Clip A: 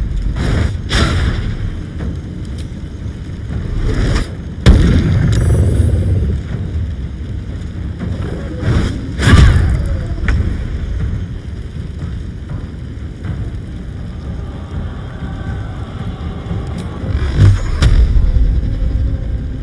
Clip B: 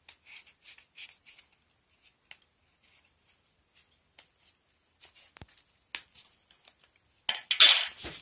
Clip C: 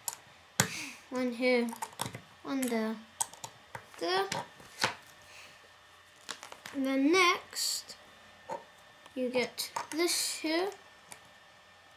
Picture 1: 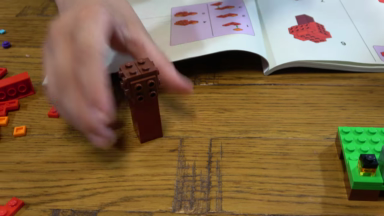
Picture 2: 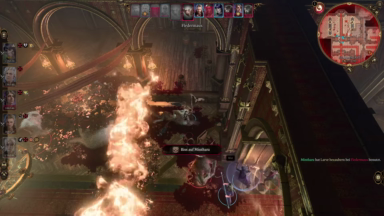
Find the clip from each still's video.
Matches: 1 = C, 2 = A